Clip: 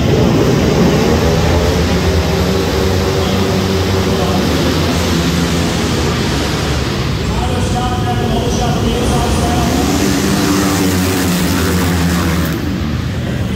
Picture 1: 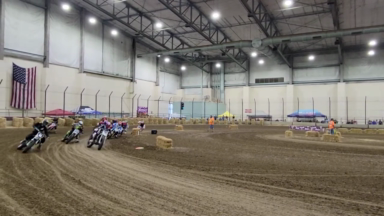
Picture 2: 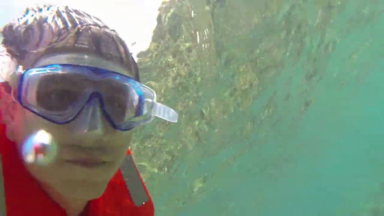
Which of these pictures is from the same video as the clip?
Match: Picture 1